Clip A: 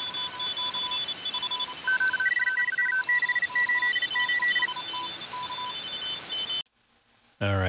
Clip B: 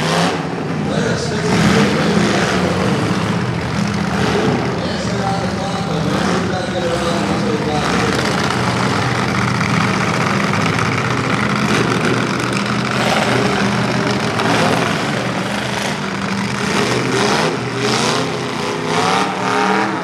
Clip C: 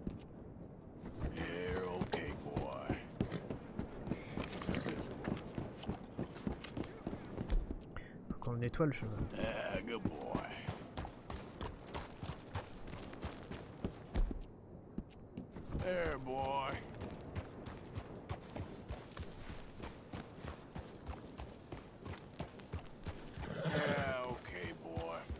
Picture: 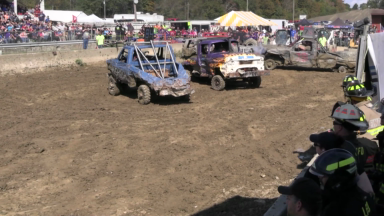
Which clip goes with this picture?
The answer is B